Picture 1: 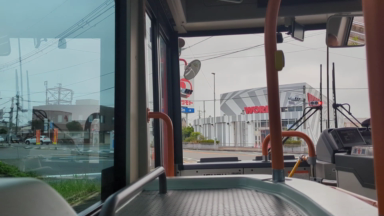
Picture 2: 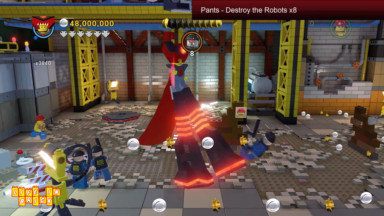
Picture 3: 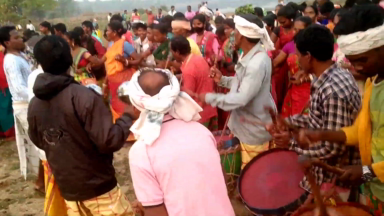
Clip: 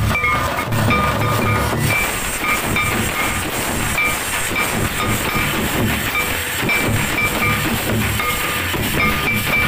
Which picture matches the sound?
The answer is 3